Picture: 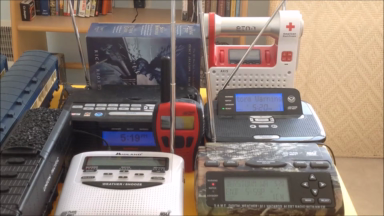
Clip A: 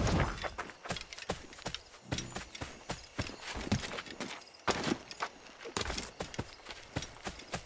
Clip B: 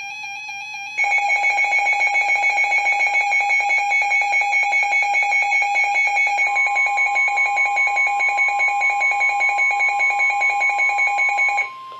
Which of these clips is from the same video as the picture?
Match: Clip B